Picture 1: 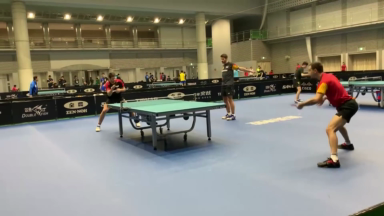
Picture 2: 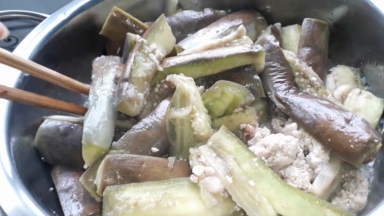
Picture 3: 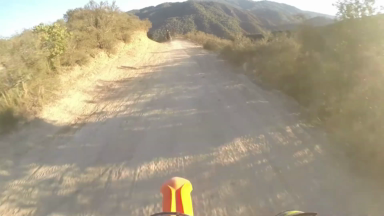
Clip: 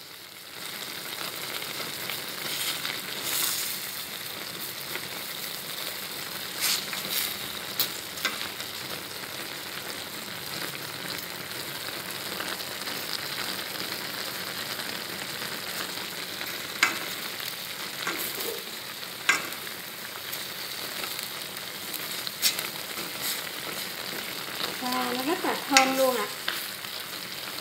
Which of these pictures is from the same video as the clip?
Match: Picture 2